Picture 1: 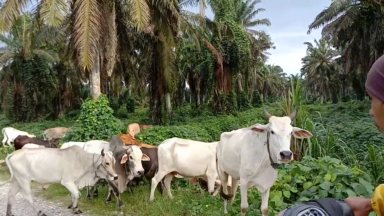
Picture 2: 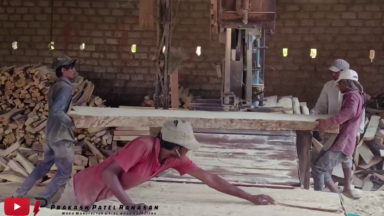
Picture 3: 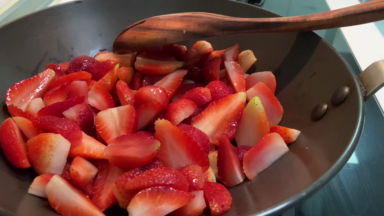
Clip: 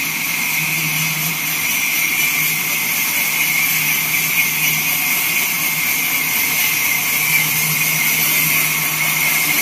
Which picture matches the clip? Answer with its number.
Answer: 2